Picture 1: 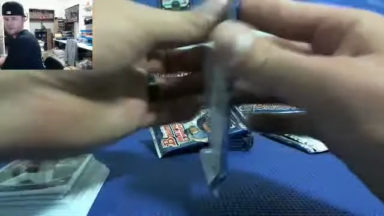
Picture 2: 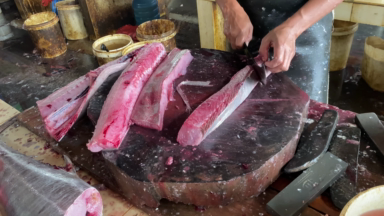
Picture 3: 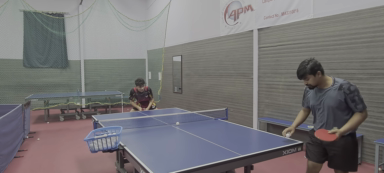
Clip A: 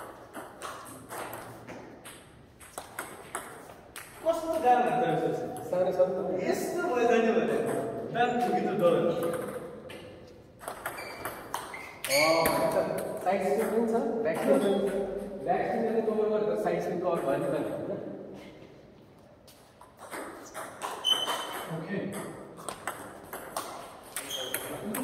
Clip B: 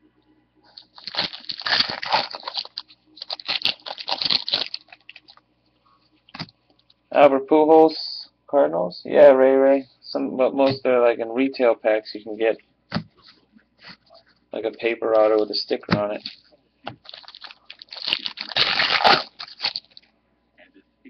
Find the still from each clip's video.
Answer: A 3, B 1